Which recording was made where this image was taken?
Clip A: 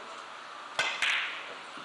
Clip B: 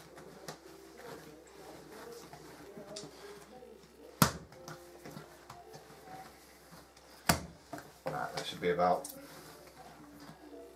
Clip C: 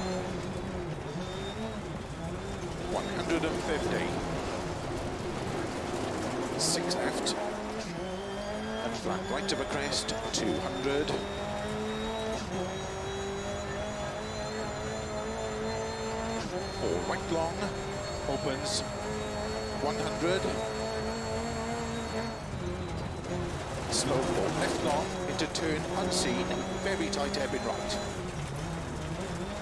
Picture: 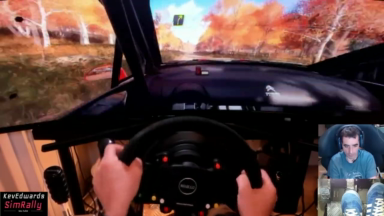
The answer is C